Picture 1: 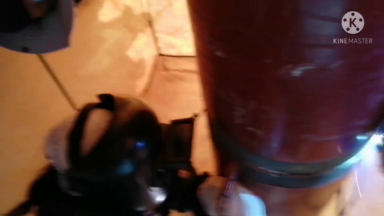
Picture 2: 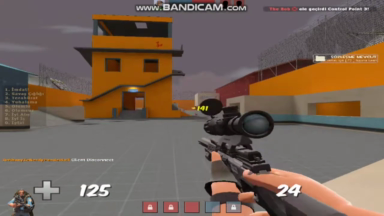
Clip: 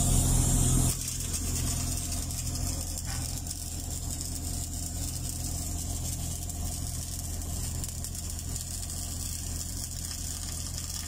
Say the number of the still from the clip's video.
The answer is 1